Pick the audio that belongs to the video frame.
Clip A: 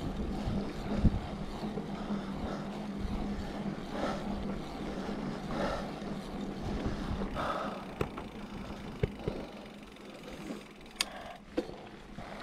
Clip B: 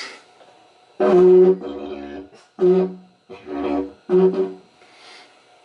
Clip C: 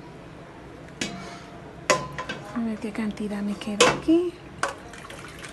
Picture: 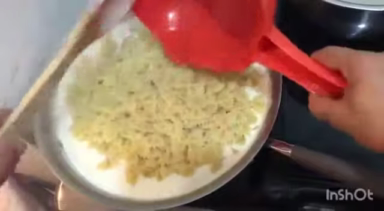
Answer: C